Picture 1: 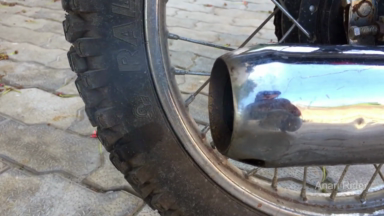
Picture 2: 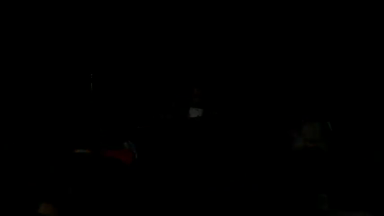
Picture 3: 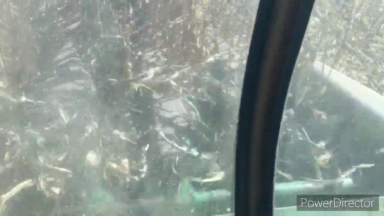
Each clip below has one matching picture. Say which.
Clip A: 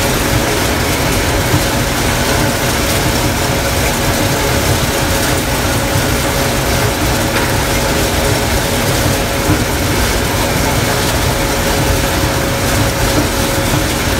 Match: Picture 3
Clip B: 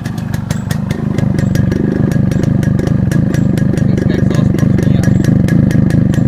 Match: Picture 1